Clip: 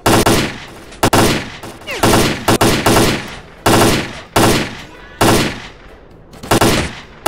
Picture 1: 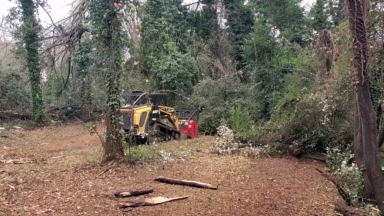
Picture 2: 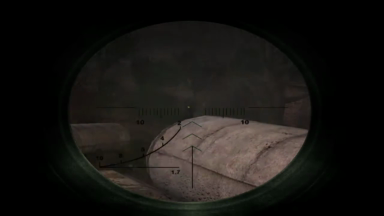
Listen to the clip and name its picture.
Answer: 2